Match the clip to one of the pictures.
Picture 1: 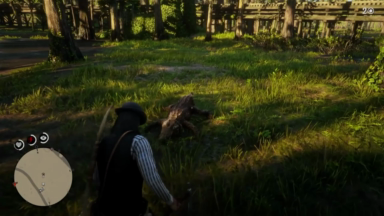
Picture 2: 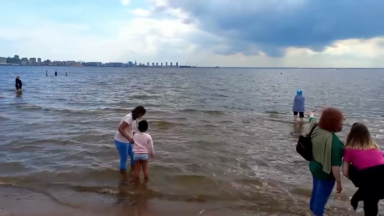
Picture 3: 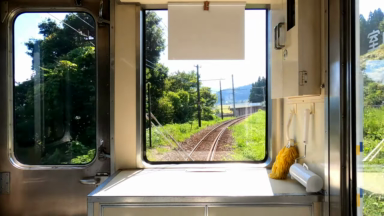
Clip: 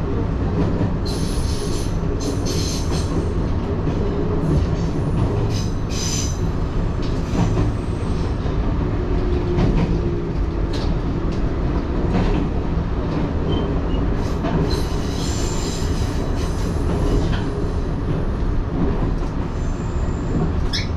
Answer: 3